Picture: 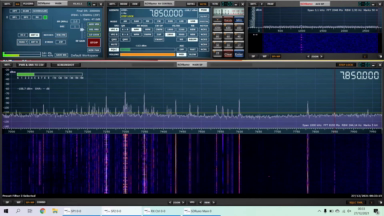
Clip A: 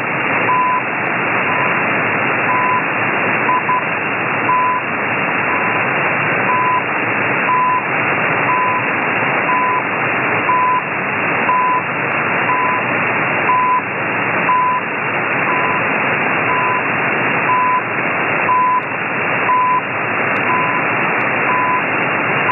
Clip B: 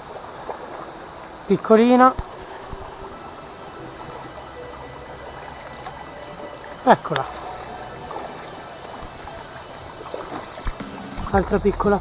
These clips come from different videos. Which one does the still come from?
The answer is A